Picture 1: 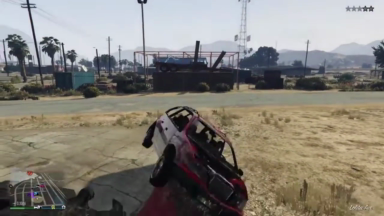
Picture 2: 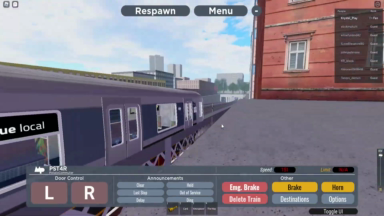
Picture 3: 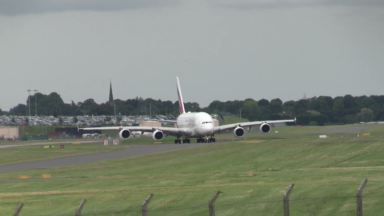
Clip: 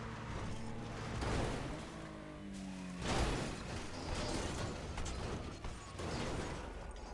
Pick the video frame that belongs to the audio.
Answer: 1